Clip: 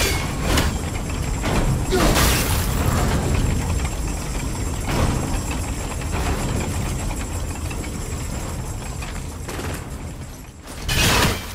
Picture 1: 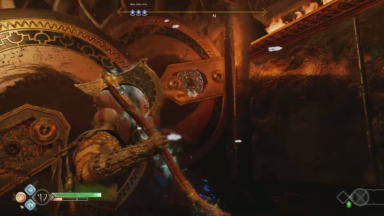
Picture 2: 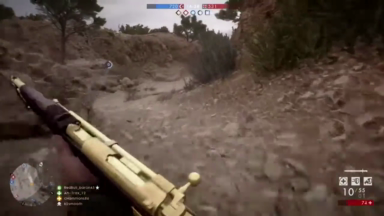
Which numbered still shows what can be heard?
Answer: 1